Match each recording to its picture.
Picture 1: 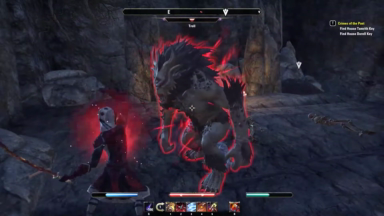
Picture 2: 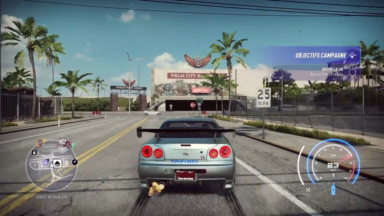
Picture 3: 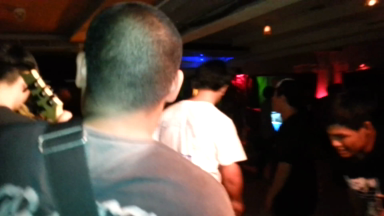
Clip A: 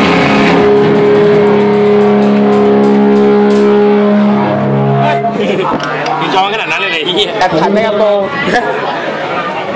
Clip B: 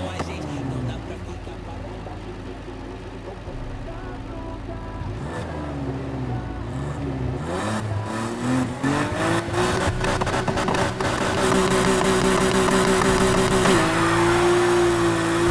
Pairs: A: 3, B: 2